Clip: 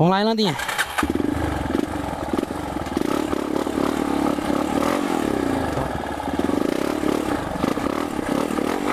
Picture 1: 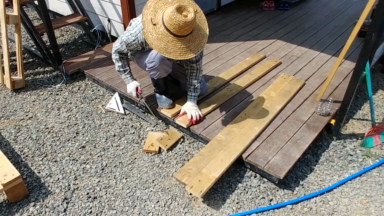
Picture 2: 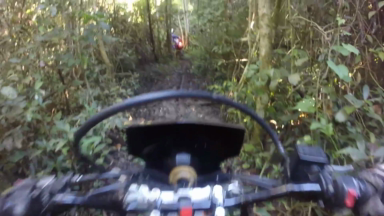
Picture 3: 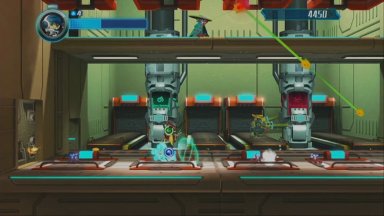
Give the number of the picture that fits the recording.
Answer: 2